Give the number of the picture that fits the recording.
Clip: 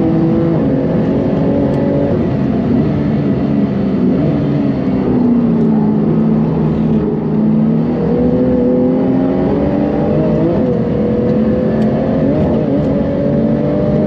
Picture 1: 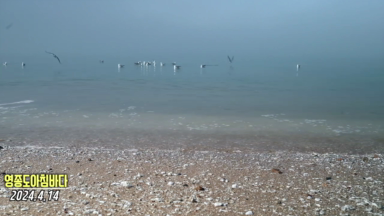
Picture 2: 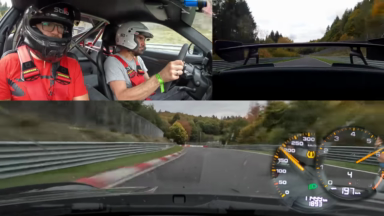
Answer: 2